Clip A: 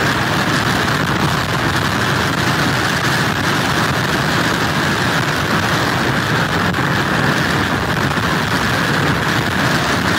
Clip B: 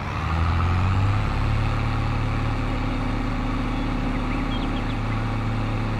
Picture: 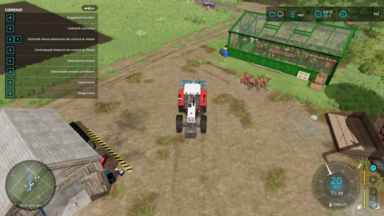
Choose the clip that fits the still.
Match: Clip B